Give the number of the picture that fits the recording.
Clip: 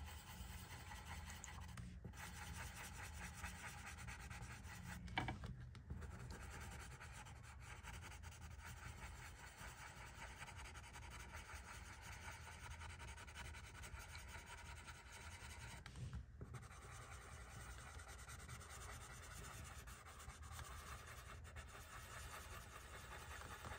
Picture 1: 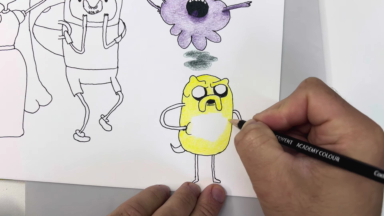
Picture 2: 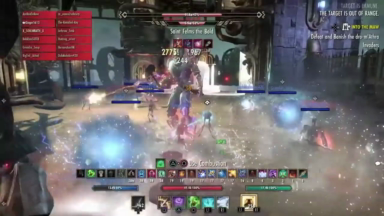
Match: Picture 1